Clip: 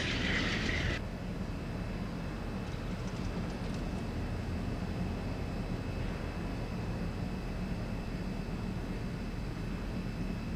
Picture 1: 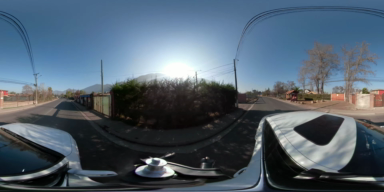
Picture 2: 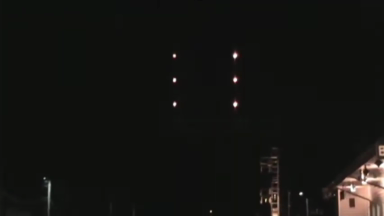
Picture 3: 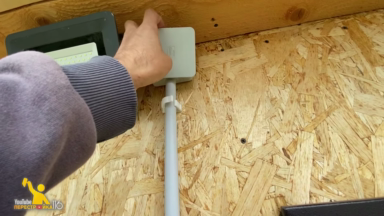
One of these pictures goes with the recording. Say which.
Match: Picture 2